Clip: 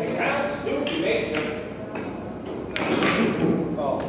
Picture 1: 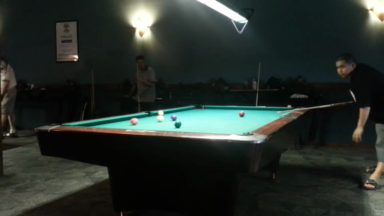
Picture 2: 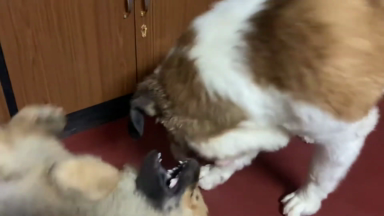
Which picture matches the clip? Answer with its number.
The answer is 1